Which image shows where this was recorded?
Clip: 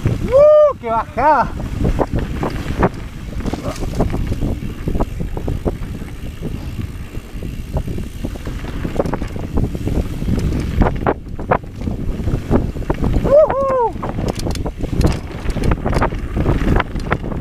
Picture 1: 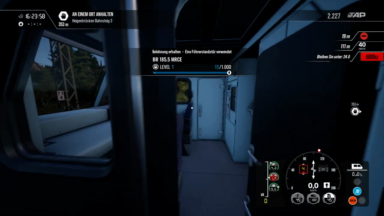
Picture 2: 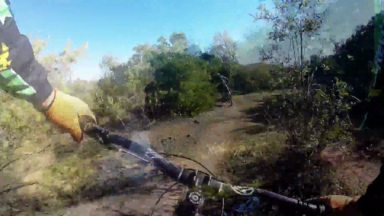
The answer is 2